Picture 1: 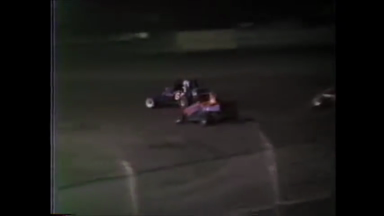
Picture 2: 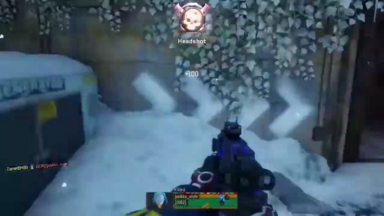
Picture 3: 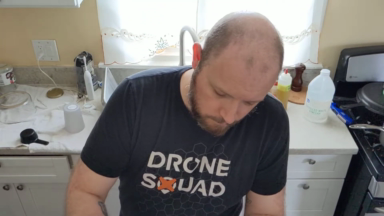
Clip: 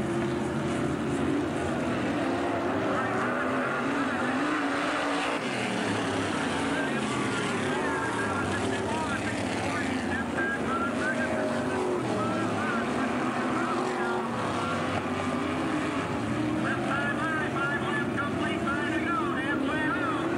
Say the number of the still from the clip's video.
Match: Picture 1